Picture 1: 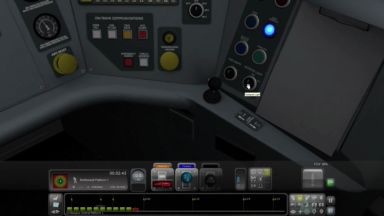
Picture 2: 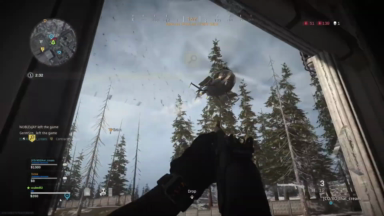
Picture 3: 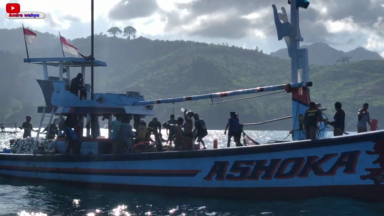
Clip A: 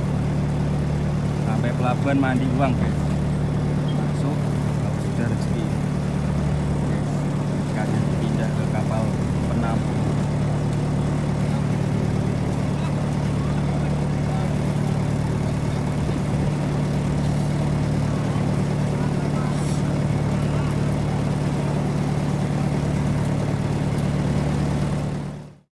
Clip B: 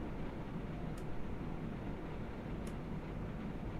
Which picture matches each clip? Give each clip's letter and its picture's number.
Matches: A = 3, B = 1